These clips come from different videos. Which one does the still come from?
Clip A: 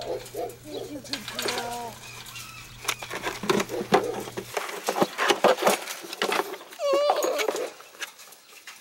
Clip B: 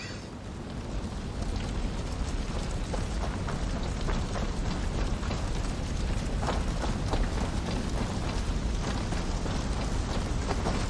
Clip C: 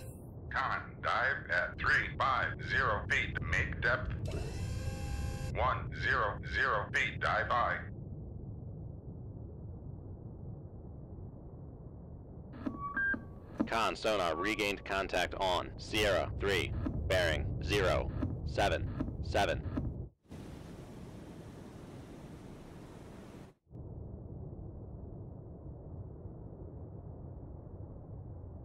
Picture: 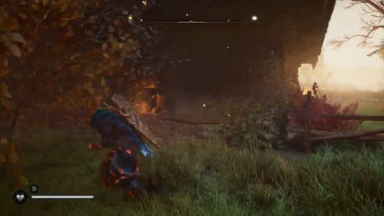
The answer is B